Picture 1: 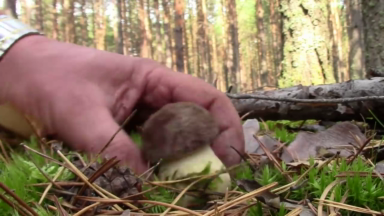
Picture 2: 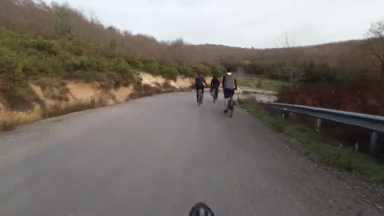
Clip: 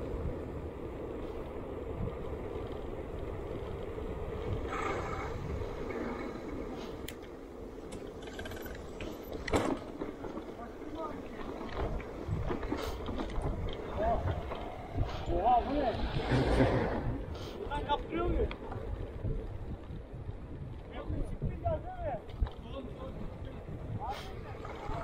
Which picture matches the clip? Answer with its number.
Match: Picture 2